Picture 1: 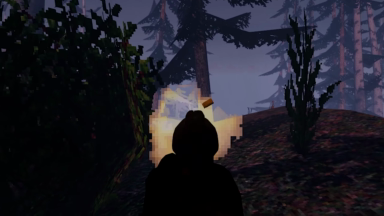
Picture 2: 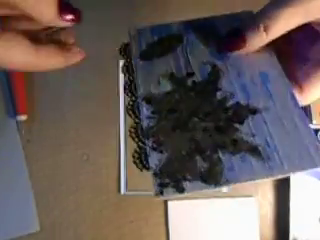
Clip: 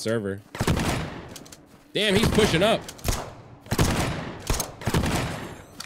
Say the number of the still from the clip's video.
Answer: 1